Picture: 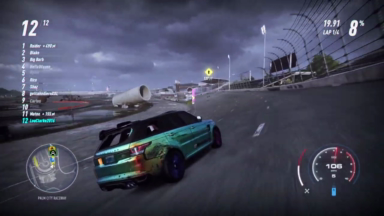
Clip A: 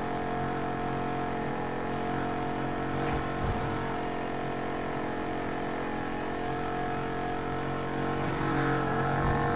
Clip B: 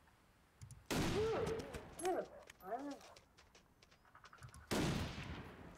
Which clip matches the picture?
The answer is A